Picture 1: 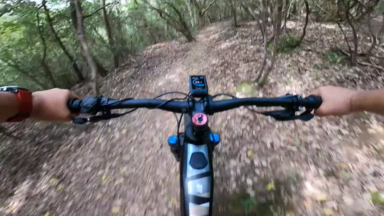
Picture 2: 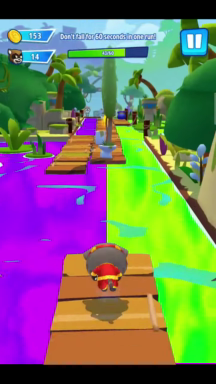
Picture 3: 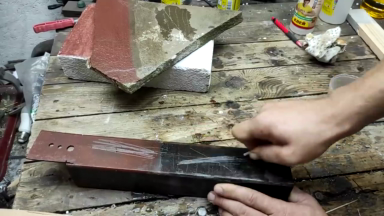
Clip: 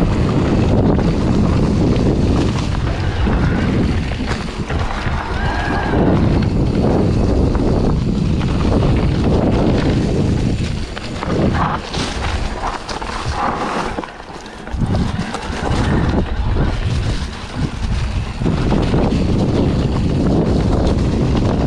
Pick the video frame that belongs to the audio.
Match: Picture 1